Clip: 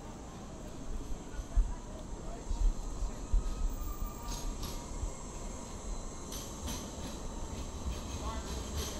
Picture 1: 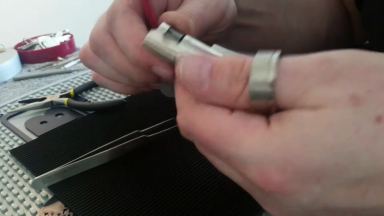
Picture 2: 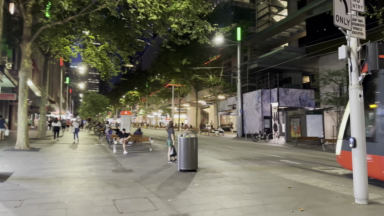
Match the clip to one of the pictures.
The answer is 2